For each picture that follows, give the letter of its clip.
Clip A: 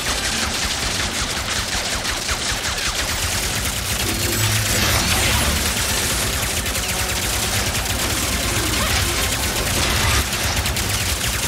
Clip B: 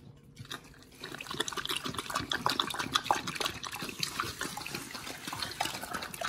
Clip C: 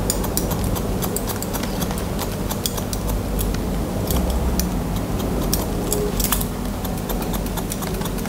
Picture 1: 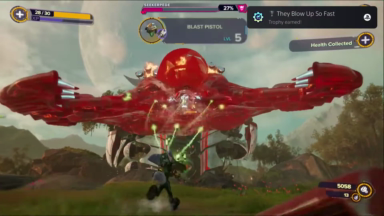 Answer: A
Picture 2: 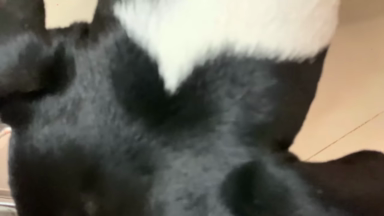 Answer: B